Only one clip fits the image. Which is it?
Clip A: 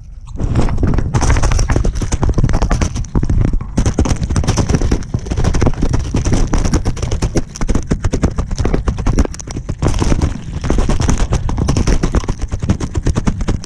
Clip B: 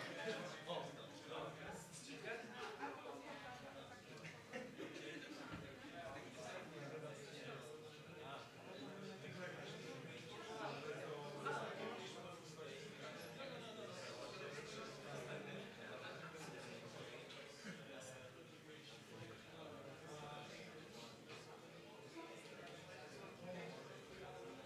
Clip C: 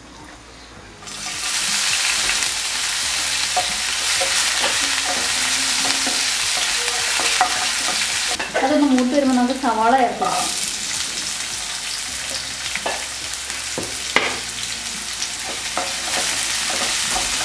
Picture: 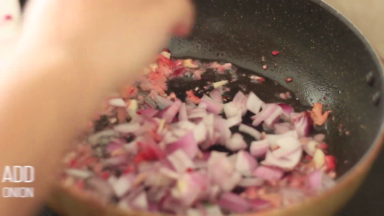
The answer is C